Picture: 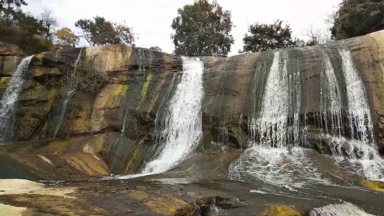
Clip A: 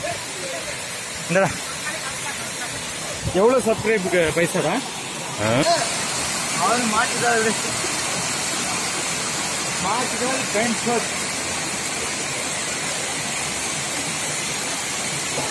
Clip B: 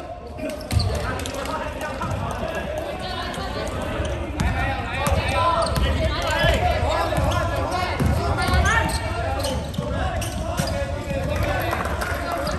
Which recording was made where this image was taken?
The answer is A